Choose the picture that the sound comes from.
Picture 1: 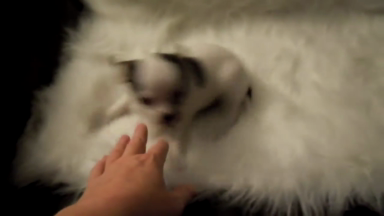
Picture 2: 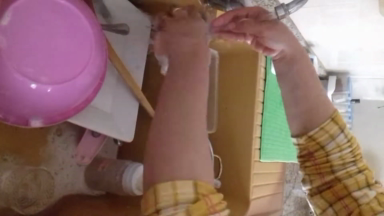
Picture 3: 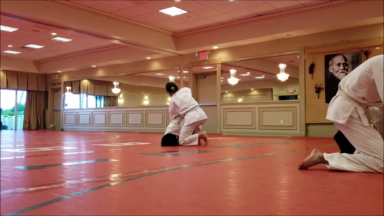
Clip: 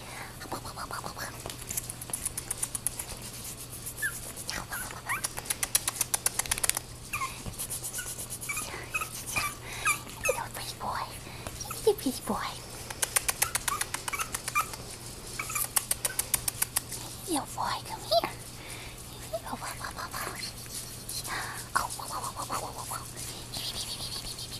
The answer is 1